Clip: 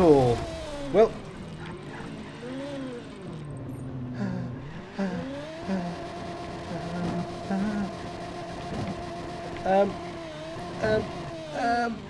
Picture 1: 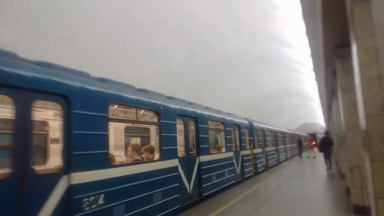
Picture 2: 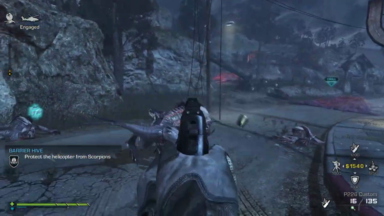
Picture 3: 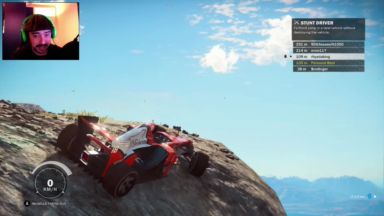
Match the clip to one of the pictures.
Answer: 3